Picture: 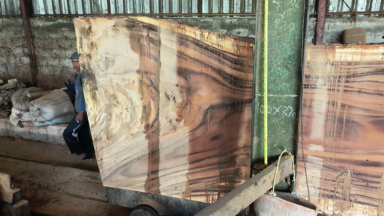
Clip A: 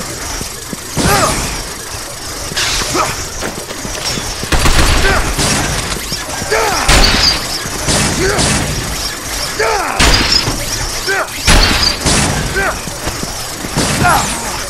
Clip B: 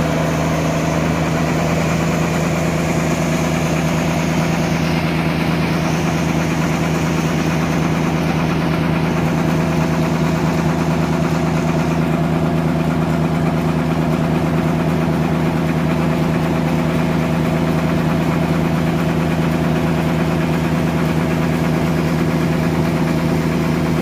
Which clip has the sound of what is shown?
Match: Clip B